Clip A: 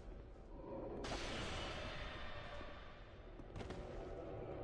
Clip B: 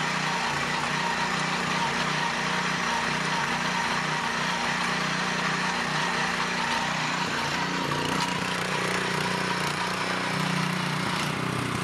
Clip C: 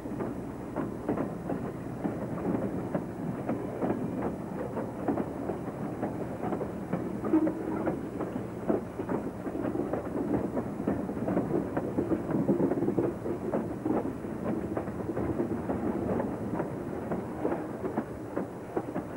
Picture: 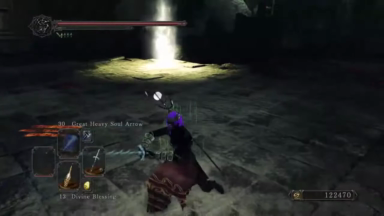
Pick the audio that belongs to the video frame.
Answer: A